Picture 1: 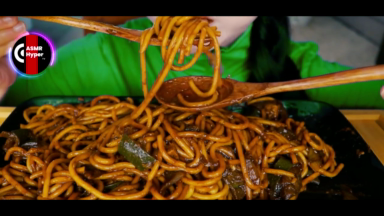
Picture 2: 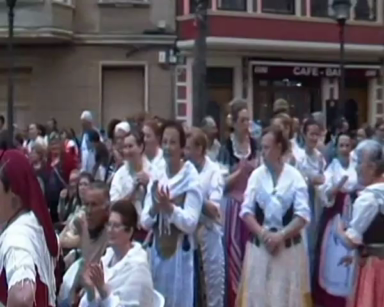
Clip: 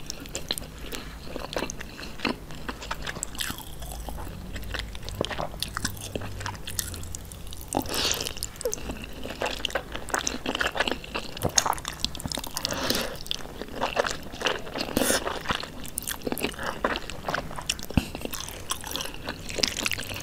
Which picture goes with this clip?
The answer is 1